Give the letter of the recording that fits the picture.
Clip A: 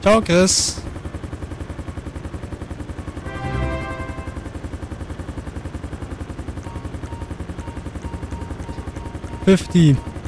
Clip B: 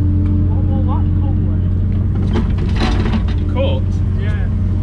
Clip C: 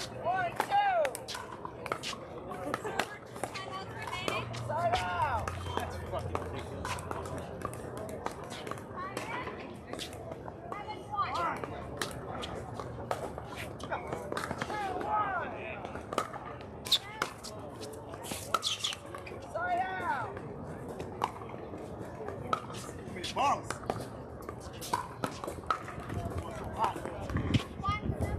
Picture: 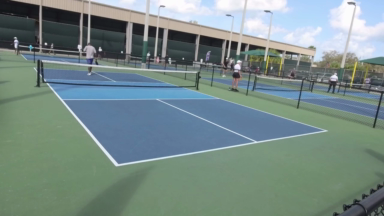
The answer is C